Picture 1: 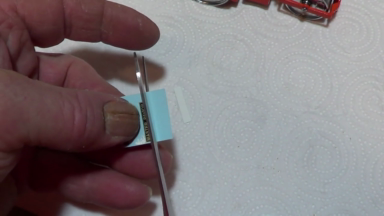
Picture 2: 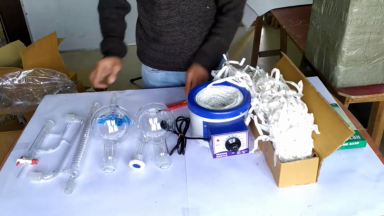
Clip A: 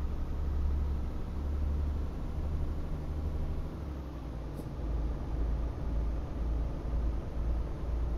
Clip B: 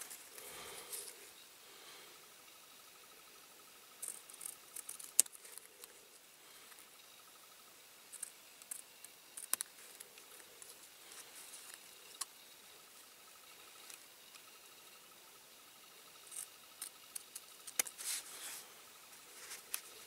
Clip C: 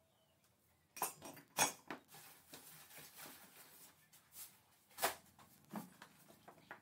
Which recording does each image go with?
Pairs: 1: B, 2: C